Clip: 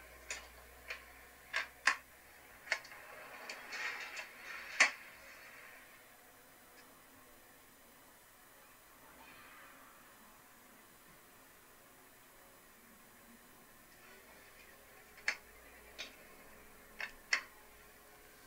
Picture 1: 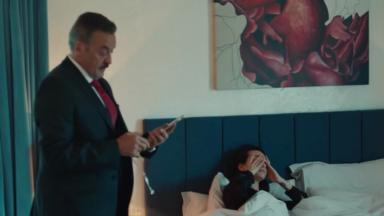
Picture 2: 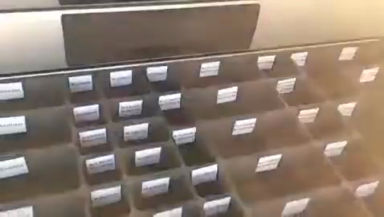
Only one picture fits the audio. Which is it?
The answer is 2